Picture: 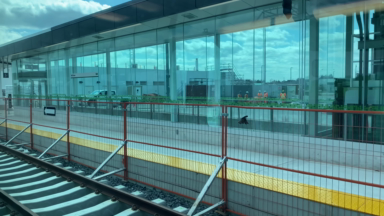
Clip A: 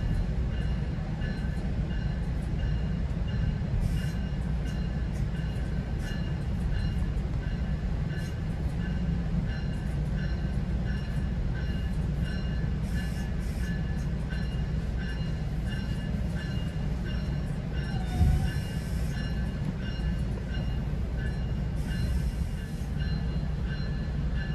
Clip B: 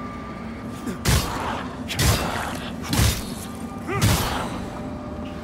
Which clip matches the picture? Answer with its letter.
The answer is A